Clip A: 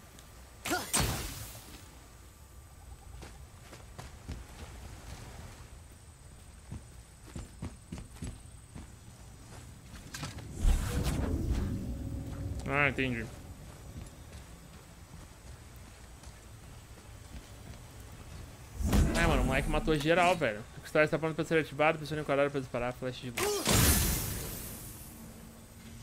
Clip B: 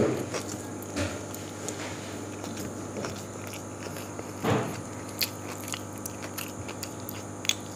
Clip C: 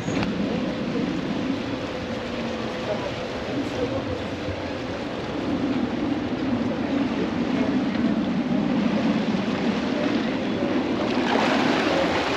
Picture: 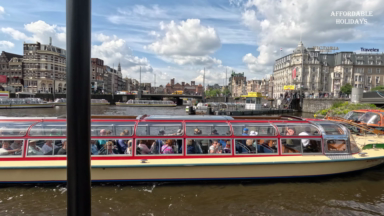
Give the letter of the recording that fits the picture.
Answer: C